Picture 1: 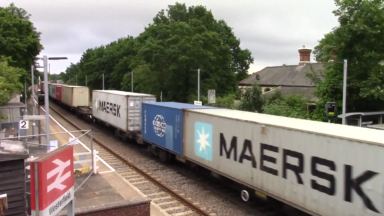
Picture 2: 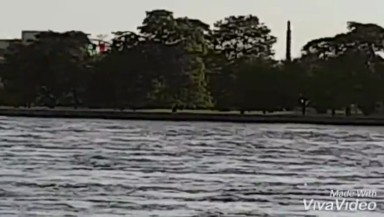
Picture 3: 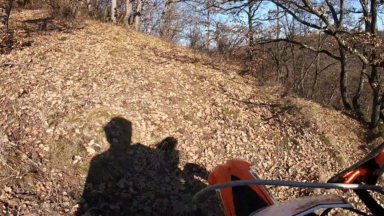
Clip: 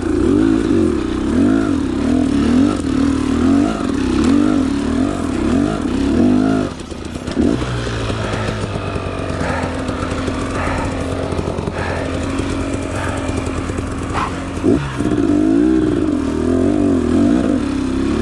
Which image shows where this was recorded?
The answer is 3